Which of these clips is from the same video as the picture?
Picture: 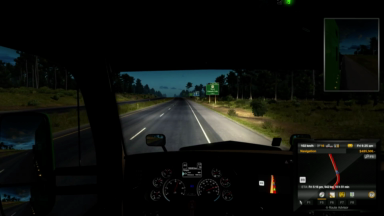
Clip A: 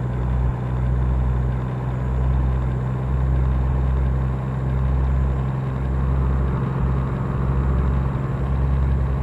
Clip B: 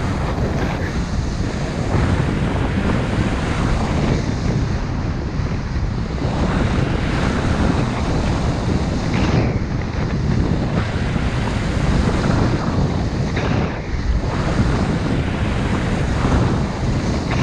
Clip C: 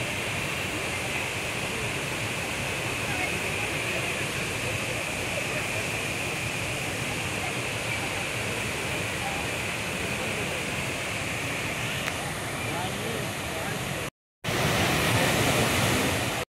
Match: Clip A